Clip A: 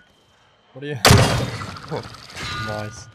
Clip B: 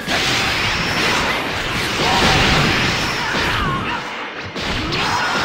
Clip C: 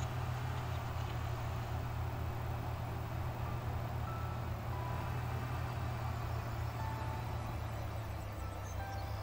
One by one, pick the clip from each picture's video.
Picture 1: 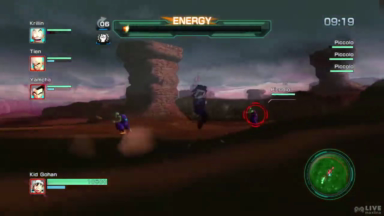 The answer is B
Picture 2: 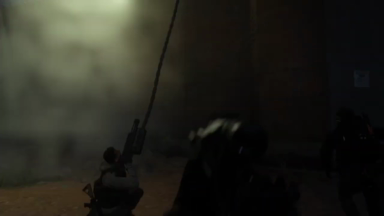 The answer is A